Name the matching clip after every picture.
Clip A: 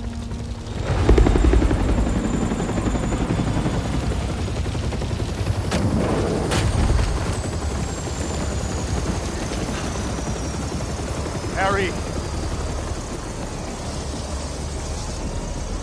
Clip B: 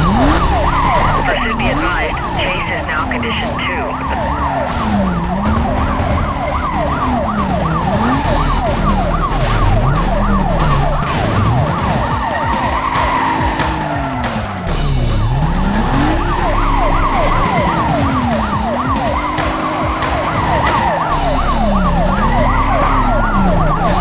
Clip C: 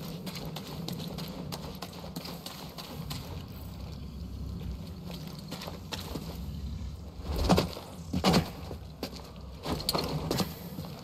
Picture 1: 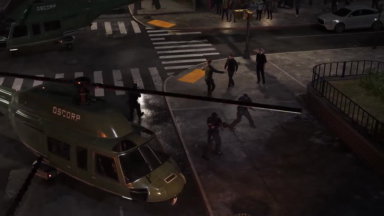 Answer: A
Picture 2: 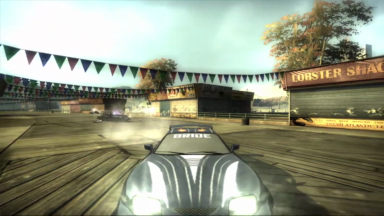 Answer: B